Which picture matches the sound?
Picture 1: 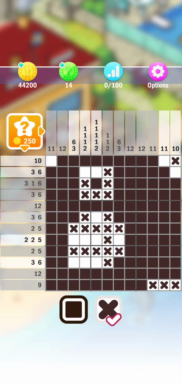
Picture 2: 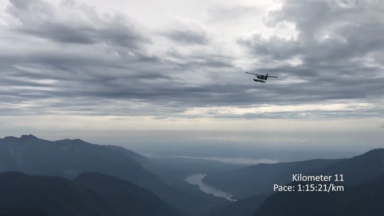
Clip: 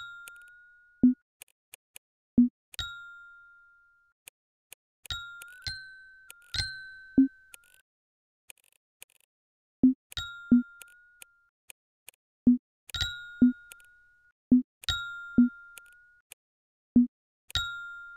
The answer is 1